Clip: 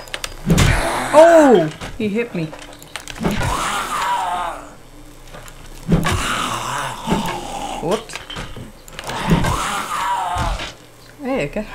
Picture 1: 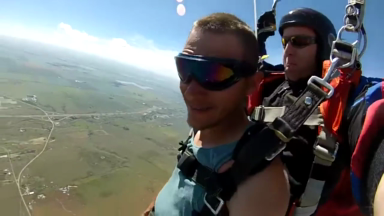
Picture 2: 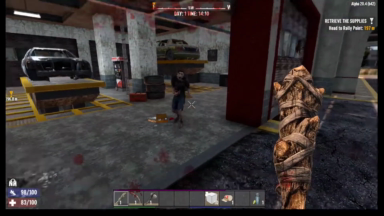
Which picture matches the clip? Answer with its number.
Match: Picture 2